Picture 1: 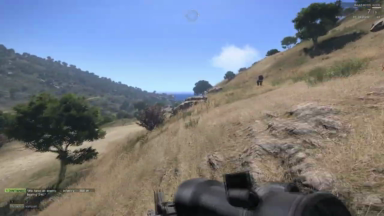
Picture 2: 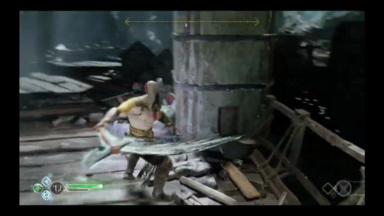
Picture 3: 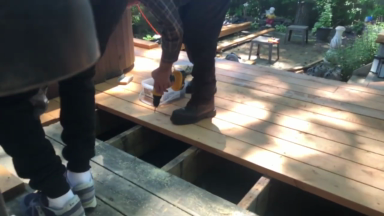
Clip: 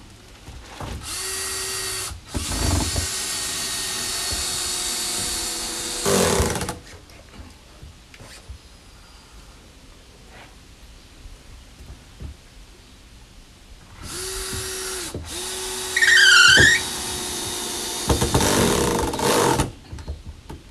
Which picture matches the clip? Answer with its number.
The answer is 3